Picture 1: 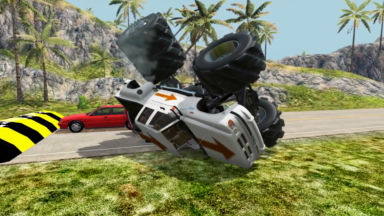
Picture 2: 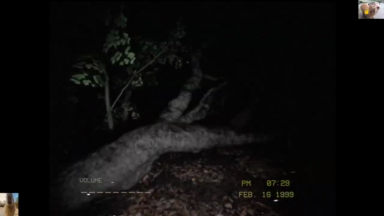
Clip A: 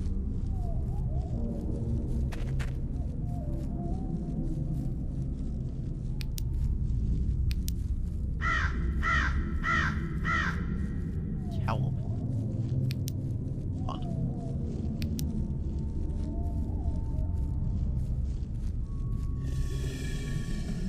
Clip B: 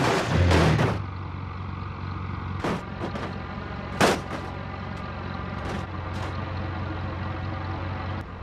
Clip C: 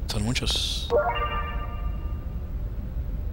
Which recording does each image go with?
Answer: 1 B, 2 A